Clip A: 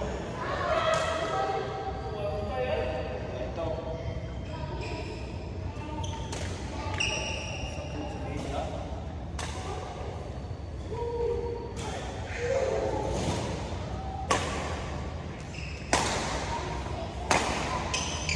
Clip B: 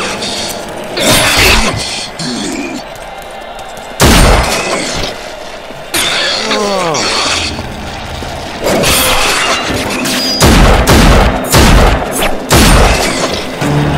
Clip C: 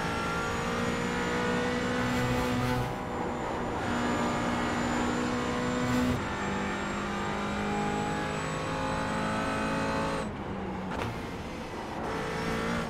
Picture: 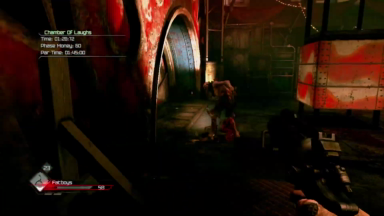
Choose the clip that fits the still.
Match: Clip B